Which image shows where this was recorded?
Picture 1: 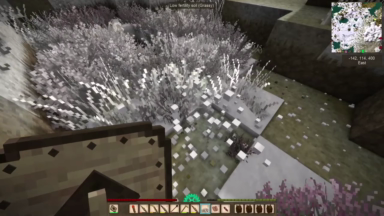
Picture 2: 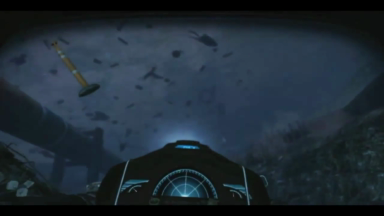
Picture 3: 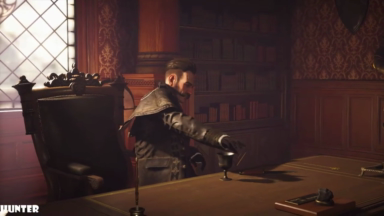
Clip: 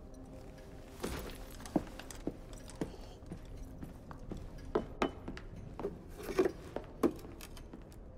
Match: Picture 3